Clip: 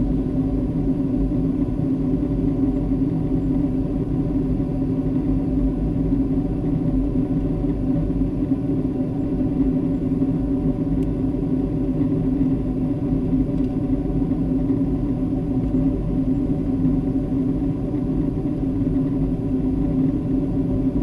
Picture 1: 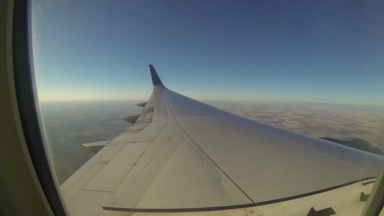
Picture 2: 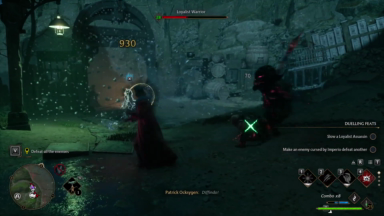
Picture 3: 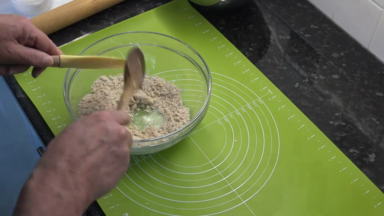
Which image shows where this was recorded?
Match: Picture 1